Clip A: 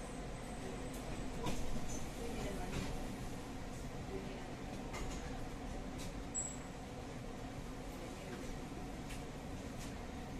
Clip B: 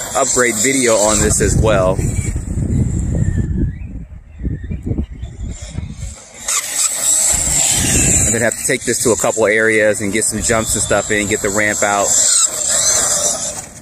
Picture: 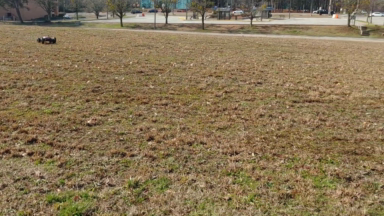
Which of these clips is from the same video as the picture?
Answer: B